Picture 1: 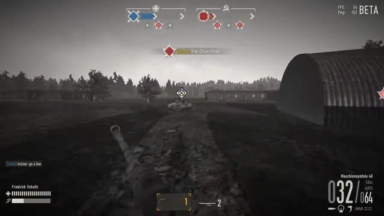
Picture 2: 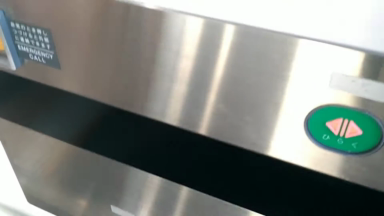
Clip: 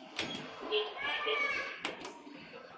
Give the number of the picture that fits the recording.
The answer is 2